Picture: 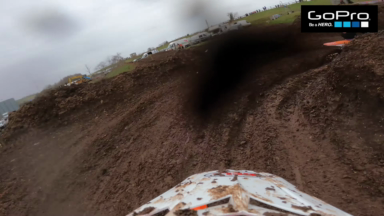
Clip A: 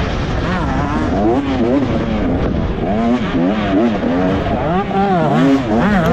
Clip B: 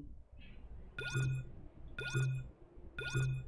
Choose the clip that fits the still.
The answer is A